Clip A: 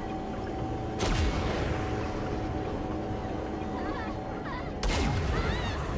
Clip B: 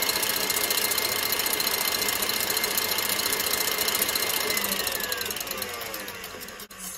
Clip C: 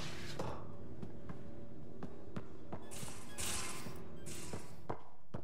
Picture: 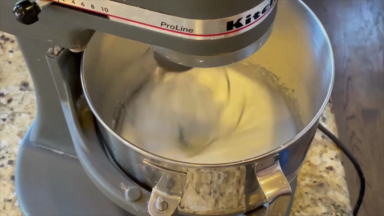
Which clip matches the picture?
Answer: B